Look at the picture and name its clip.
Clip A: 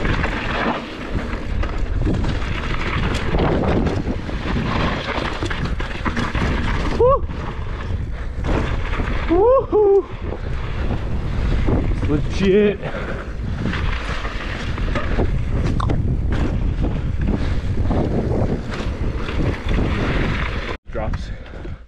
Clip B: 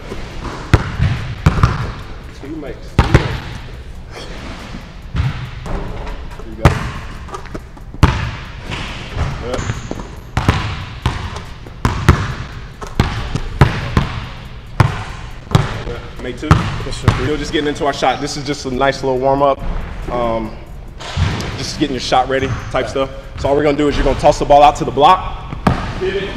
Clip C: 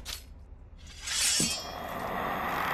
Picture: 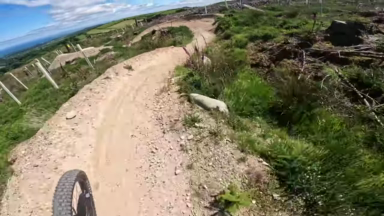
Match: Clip A